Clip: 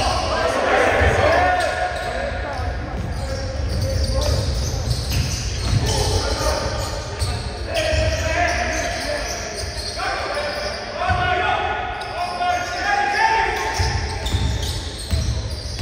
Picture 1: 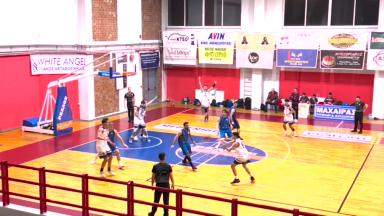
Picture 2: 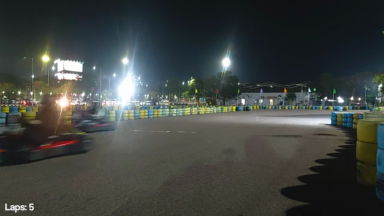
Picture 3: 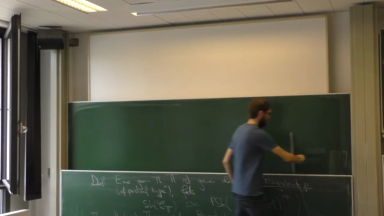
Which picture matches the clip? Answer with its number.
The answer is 1